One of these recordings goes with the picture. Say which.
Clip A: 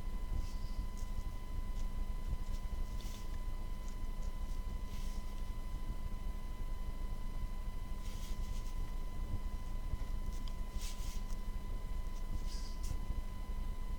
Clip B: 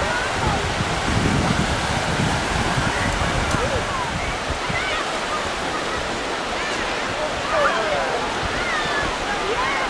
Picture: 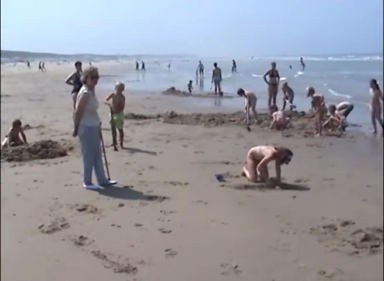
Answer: B